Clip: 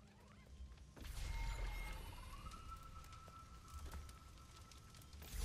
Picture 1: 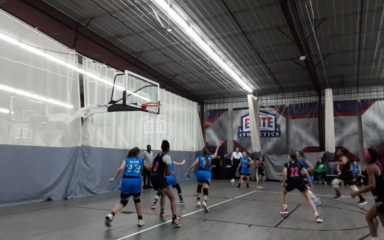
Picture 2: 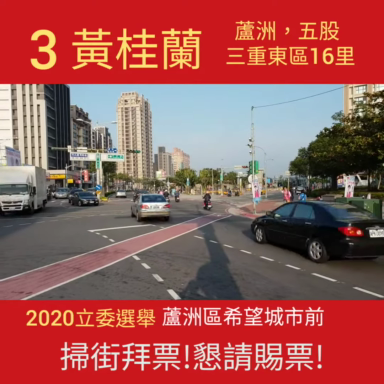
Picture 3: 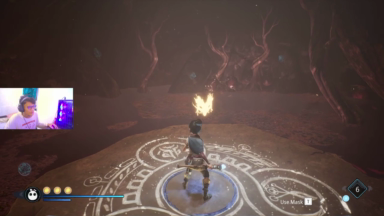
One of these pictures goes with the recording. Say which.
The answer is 3